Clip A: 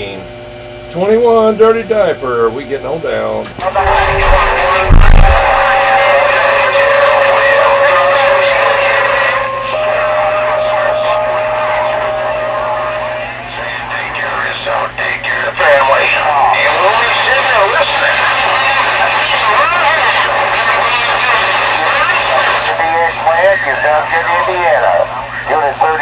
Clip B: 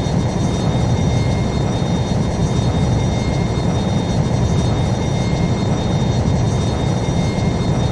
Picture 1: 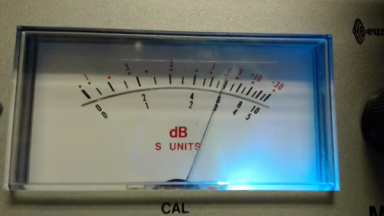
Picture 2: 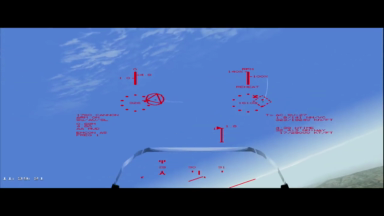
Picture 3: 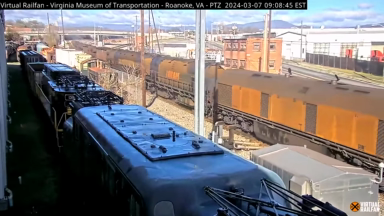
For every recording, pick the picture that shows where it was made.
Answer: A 1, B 2